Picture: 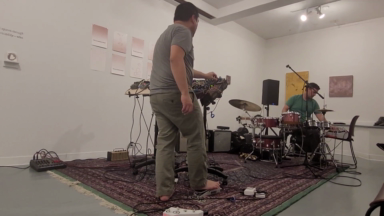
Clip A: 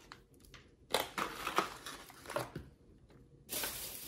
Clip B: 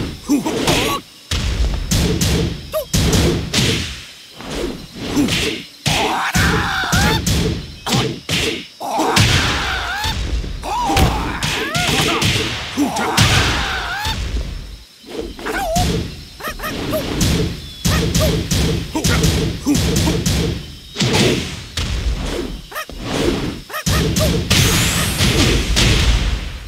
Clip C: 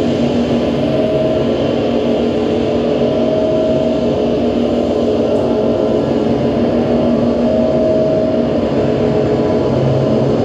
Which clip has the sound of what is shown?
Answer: C